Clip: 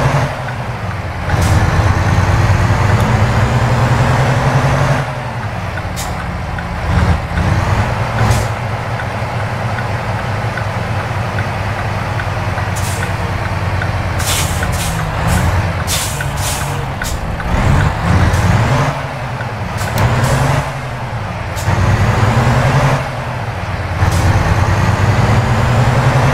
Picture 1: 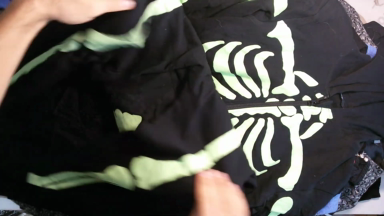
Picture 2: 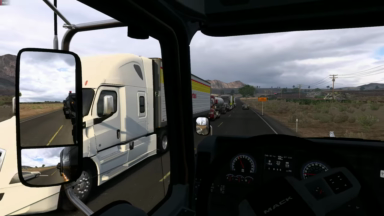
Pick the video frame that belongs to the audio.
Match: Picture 2